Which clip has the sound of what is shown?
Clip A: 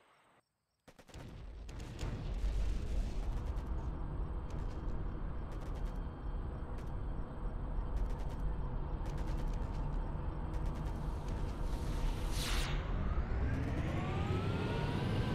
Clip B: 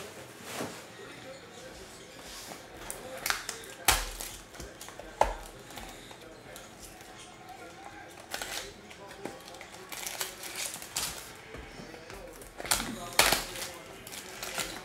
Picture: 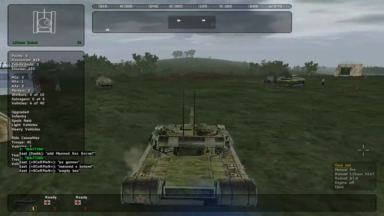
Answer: A